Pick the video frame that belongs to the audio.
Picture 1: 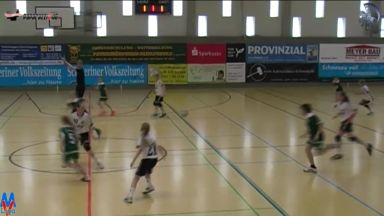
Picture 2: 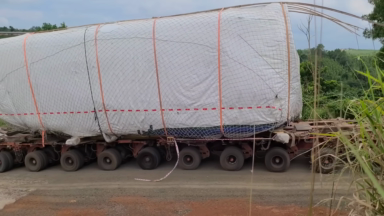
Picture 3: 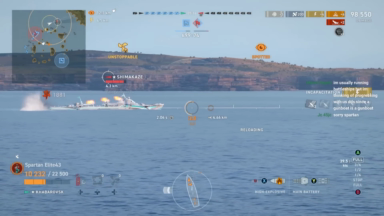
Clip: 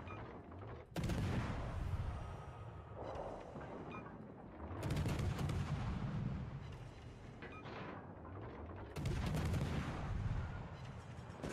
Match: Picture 3